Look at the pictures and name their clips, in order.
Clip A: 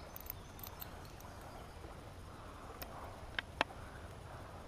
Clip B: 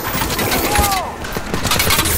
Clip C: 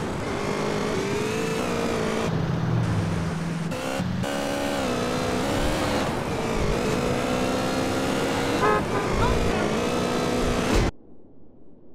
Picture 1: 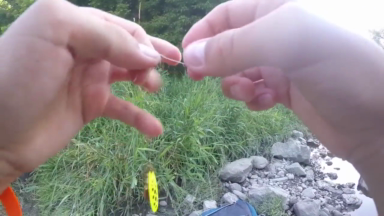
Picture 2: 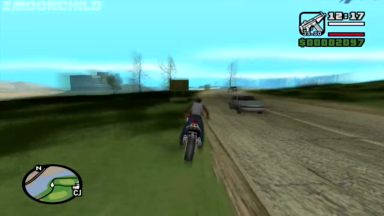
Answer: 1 A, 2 C